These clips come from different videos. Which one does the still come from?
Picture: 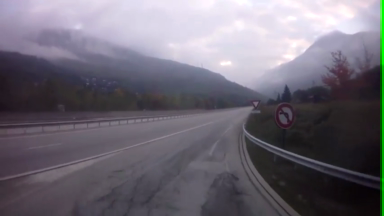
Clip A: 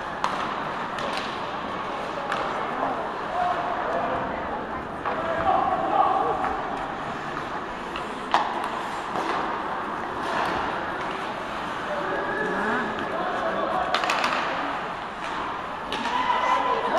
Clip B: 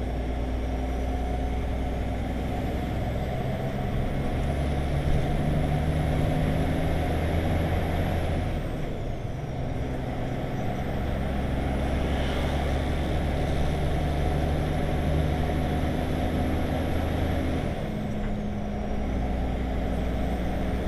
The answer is B